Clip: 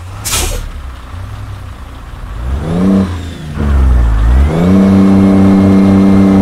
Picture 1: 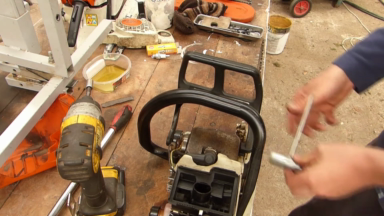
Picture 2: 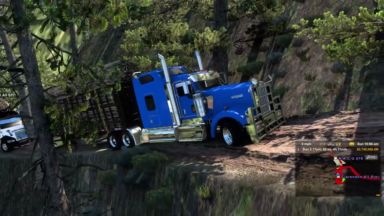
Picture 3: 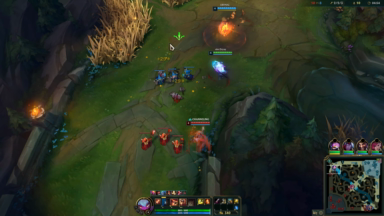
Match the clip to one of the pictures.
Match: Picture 2